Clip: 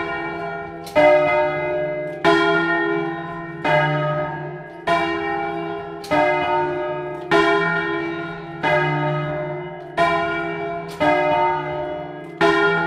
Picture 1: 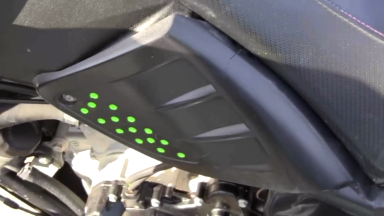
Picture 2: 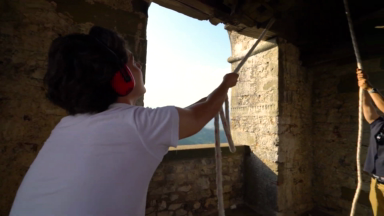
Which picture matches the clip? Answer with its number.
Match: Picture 2